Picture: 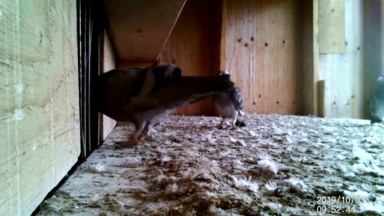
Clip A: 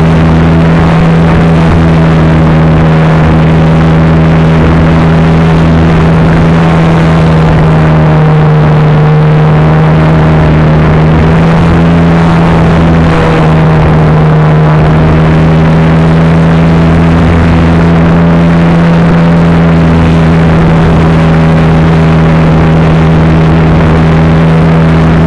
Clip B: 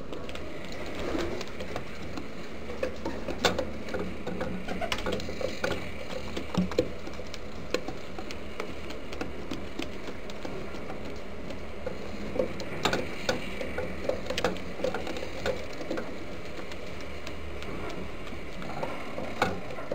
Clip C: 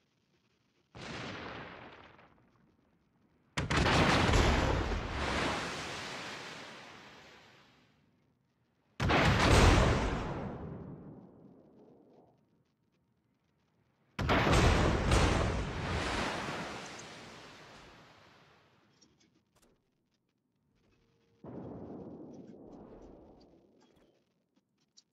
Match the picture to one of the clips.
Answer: B